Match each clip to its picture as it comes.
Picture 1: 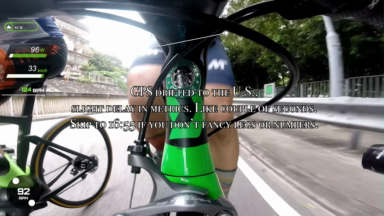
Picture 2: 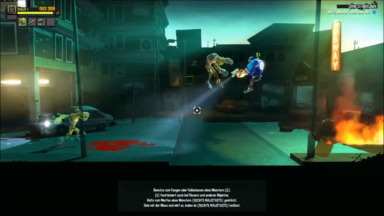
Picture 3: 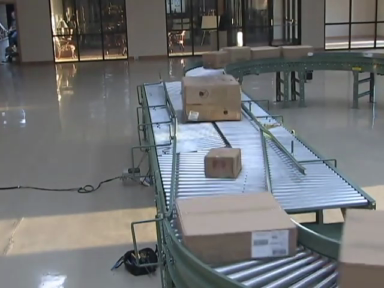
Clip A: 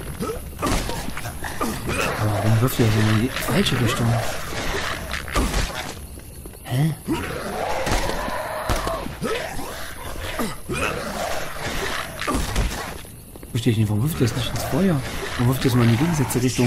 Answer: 2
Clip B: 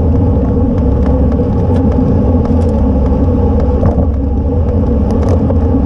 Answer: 1